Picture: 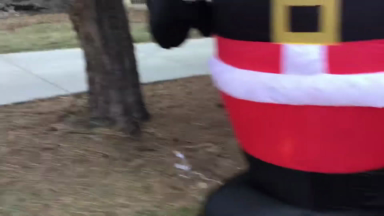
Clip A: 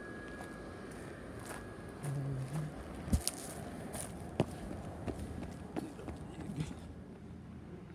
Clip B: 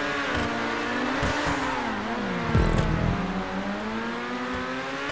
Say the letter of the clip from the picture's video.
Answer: A